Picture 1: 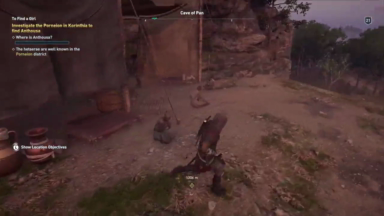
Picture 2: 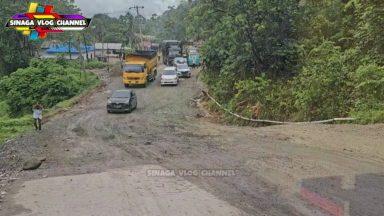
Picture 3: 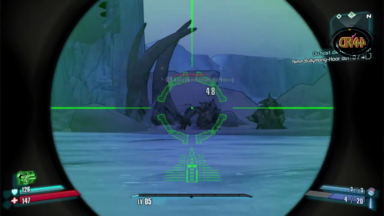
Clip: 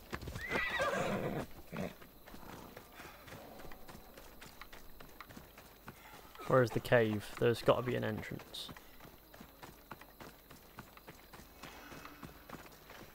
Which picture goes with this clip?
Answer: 1